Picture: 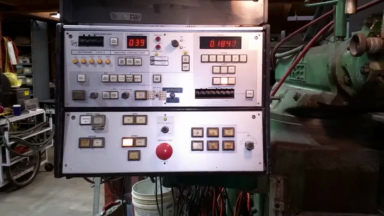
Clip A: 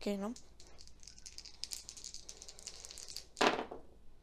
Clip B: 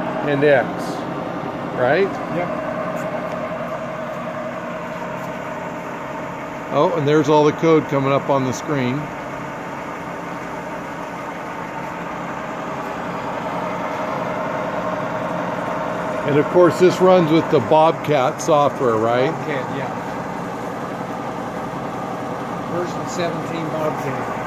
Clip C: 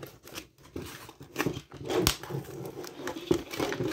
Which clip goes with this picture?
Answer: B